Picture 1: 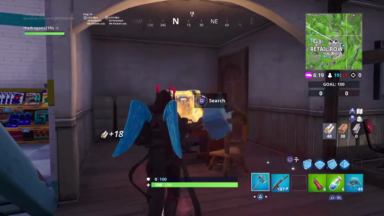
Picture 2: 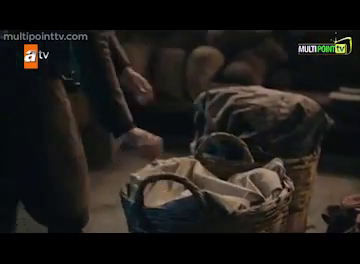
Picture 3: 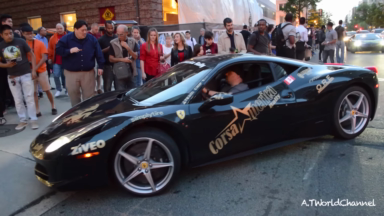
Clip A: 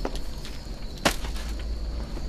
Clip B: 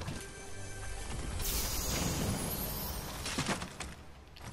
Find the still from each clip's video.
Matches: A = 2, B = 1